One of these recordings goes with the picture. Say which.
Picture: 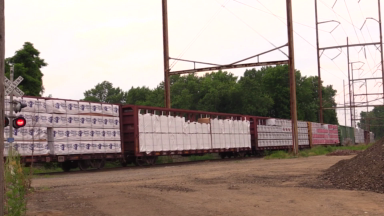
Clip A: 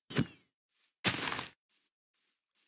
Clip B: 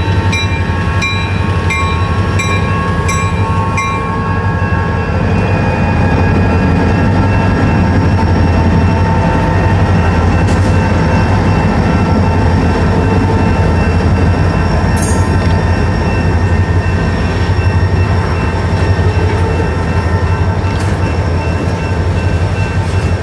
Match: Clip B